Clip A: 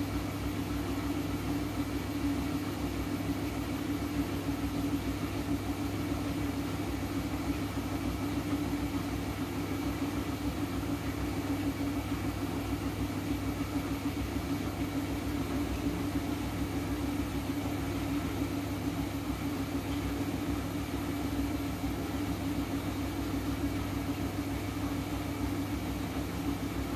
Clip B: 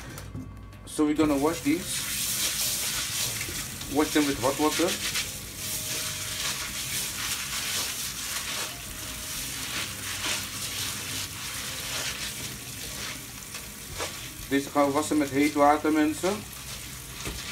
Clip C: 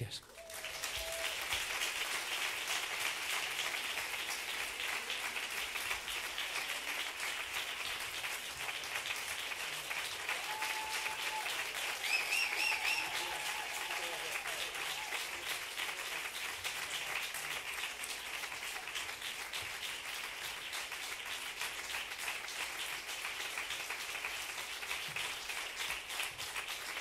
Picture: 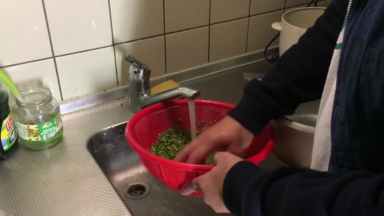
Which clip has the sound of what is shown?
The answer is B